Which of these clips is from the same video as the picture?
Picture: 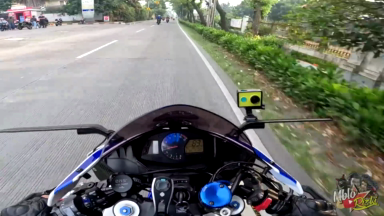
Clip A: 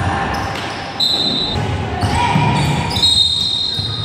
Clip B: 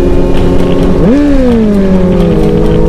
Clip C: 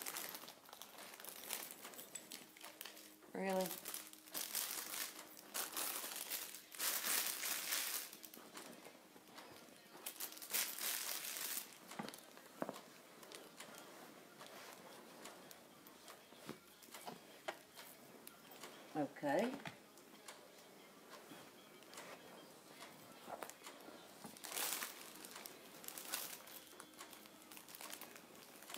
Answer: B